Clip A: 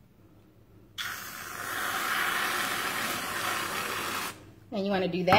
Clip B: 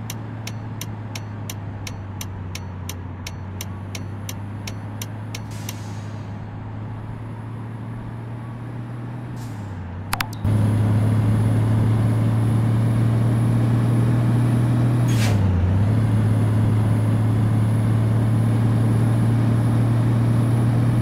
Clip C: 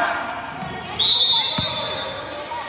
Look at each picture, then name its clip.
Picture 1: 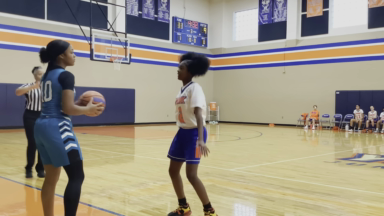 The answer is C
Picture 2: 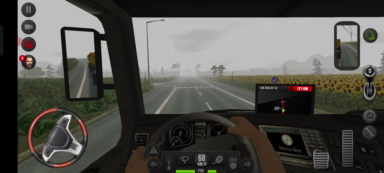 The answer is B